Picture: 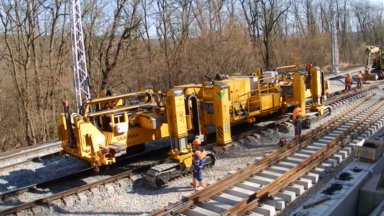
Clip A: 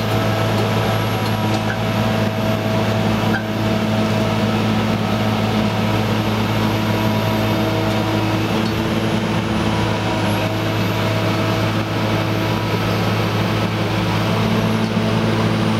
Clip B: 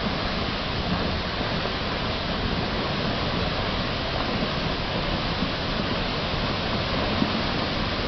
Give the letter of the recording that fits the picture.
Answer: A